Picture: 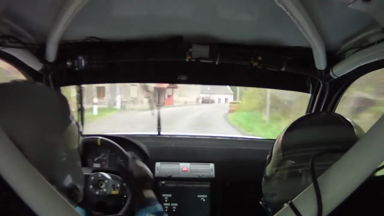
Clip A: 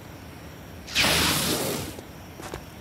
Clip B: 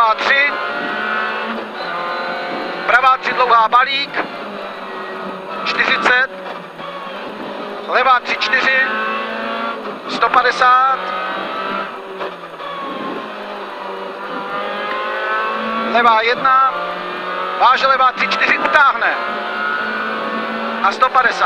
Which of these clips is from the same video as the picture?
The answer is B